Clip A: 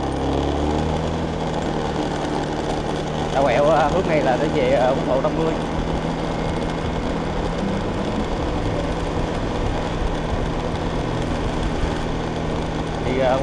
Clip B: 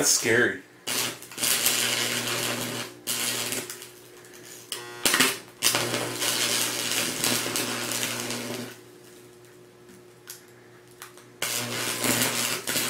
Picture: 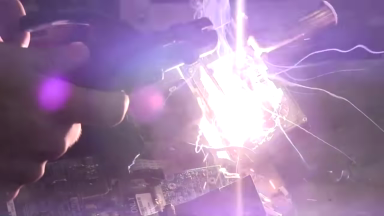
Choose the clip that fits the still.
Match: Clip B